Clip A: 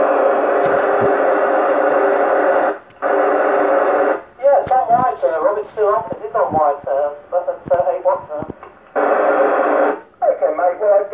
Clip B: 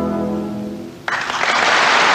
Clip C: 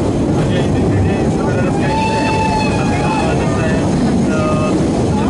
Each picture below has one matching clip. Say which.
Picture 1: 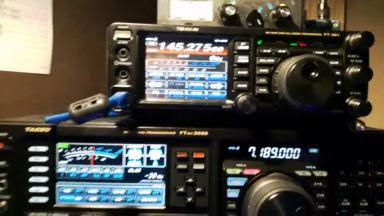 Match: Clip A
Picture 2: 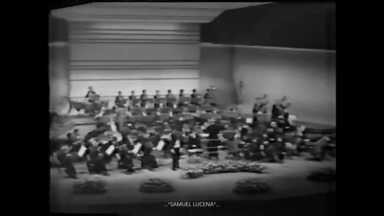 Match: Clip B